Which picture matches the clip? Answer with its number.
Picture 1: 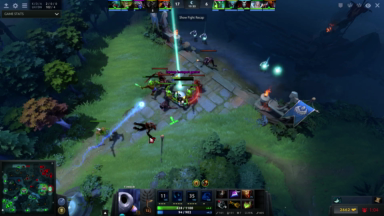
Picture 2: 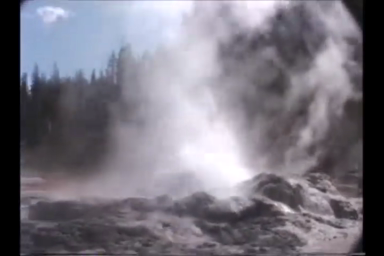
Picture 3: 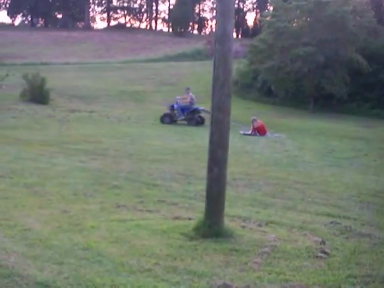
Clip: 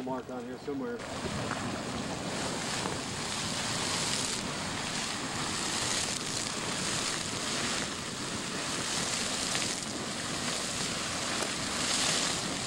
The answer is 2